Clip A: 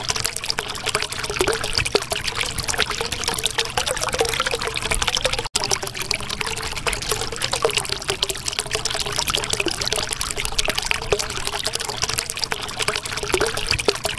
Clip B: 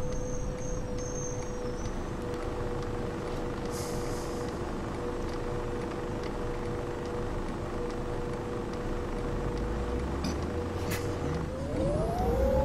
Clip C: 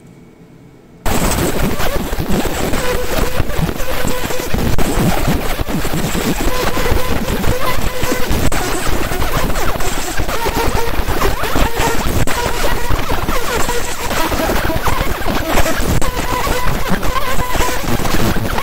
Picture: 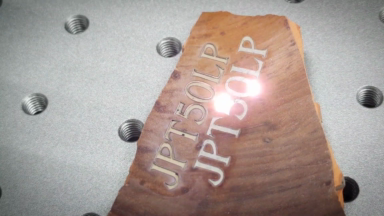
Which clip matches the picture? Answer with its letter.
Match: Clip C